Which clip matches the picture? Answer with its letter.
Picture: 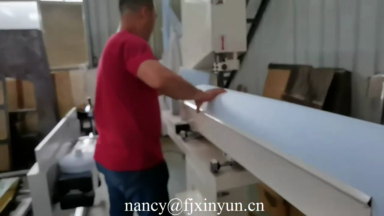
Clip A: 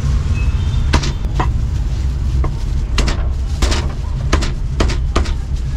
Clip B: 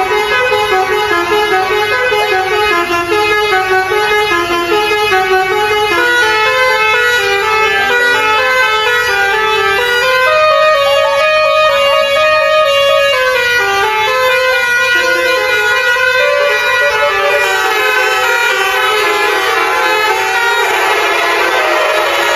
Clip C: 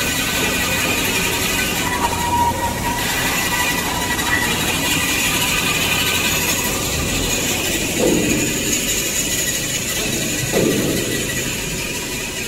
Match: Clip C